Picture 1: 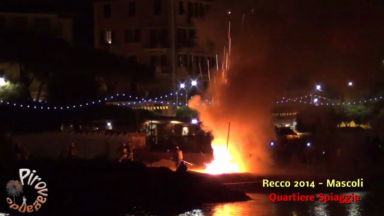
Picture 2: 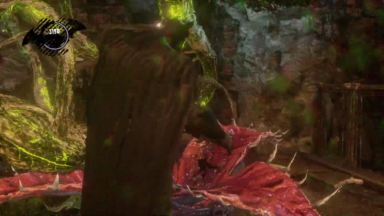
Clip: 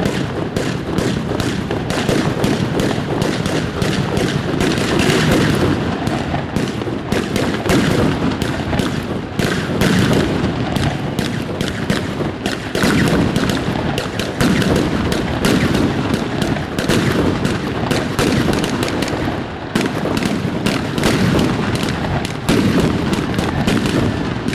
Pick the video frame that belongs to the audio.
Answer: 1